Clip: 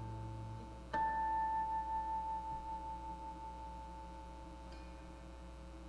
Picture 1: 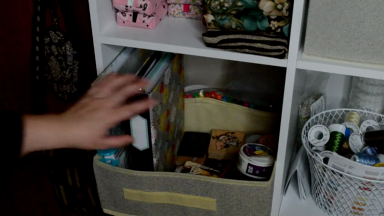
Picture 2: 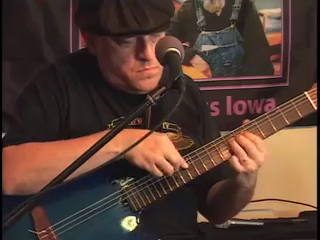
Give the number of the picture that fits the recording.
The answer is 2